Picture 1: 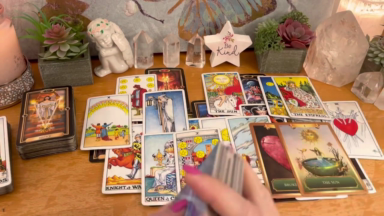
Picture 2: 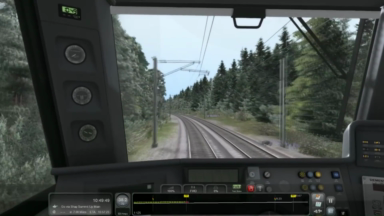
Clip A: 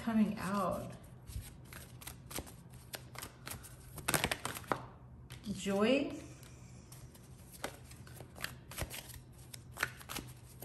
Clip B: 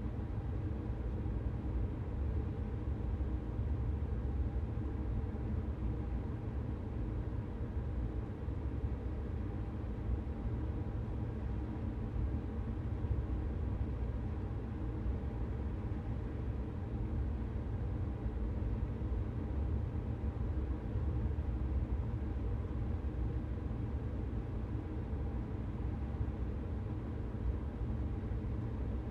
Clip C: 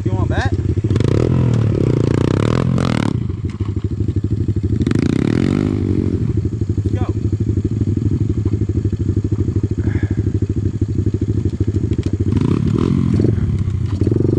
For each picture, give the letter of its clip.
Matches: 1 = A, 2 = B